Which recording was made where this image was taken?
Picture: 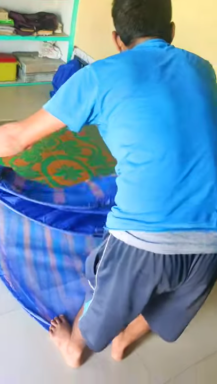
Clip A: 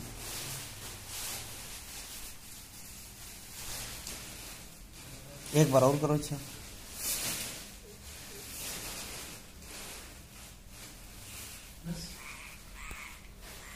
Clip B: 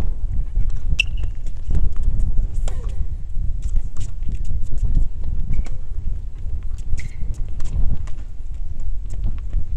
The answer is A